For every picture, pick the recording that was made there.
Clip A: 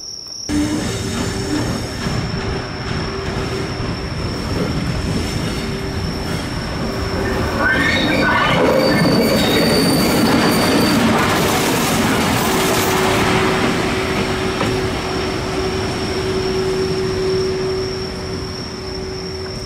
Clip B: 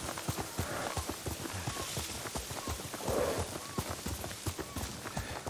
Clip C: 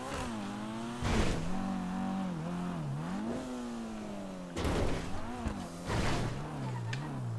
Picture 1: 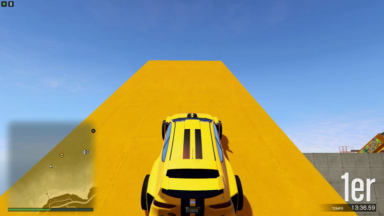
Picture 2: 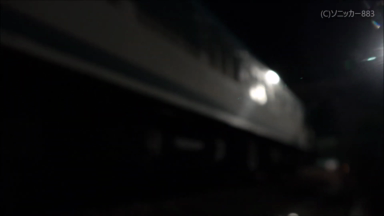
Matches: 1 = C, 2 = A